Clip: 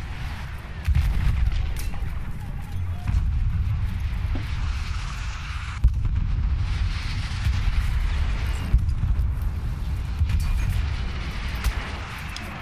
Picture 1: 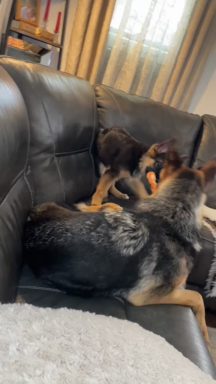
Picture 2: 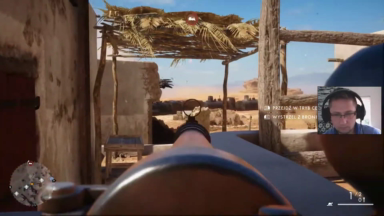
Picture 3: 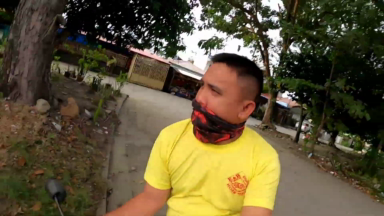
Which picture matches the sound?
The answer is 2